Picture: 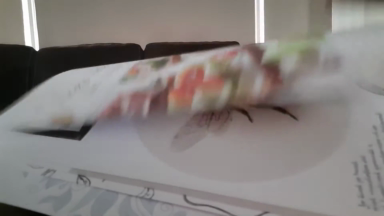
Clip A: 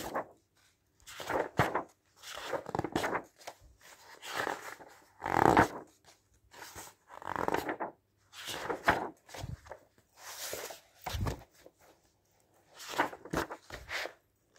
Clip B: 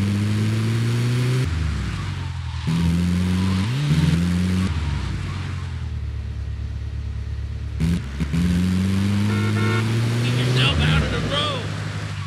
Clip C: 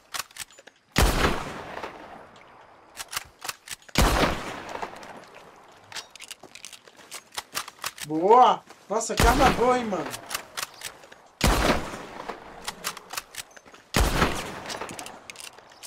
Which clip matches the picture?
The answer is A